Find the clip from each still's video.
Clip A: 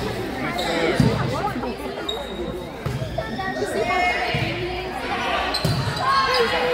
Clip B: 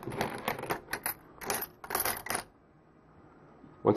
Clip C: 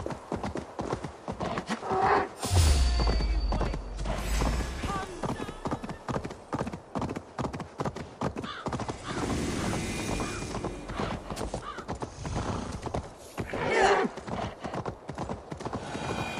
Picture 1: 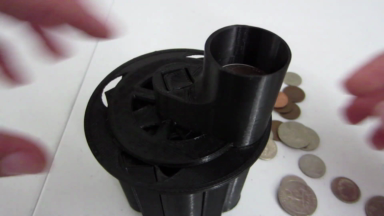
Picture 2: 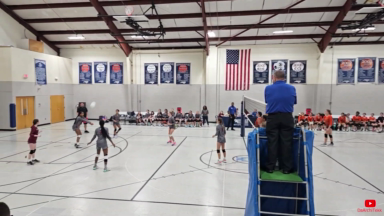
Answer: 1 B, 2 A